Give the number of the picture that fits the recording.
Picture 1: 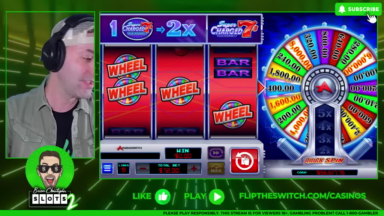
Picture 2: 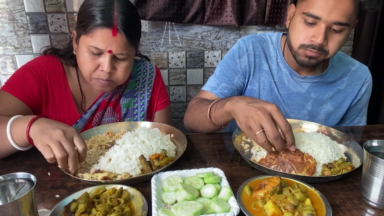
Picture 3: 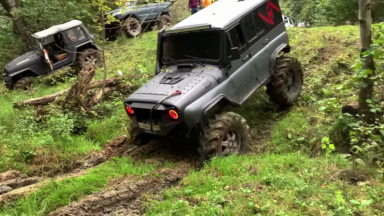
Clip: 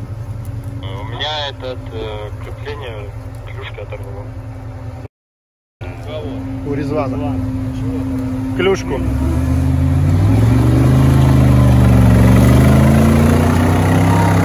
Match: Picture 3